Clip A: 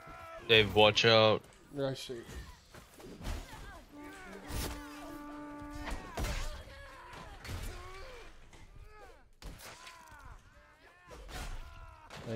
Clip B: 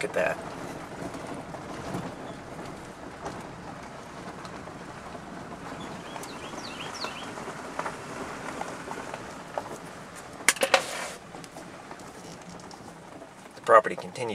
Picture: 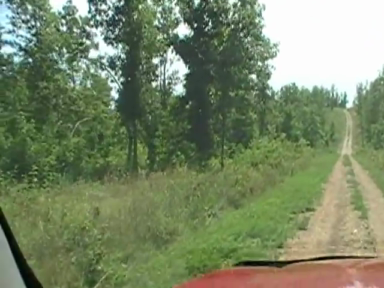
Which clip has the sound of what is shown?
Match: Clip B